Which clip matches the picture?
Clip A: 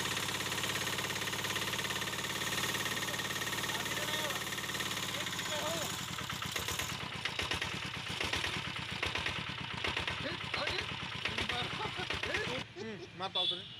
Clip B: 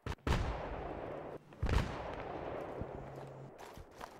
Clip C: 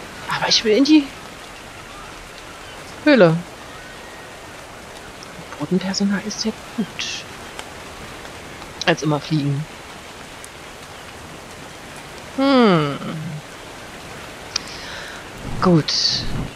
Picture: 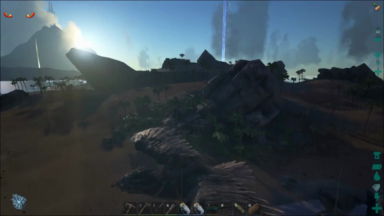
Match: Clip C